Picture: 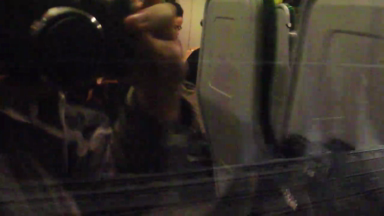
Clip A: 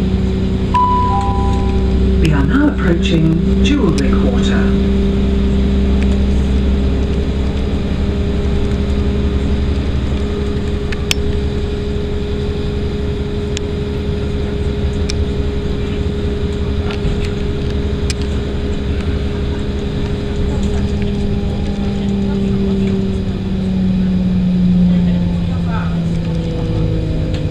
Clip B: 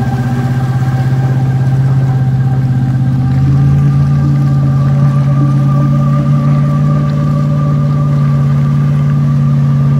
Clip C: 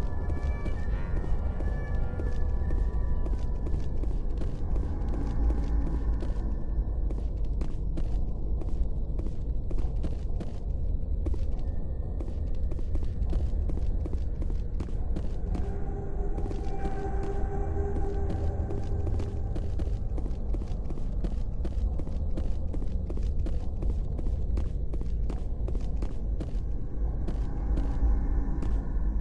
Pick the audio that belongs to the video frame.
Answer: A